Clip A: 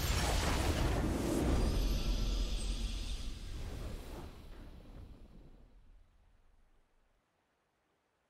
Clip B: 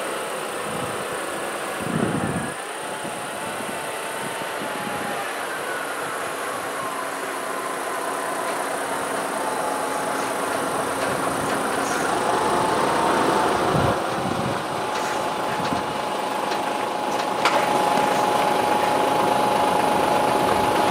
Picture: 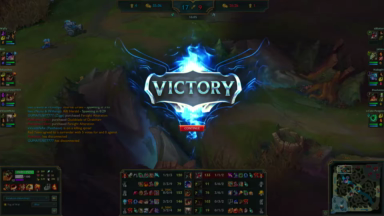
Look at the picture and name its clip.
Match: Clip A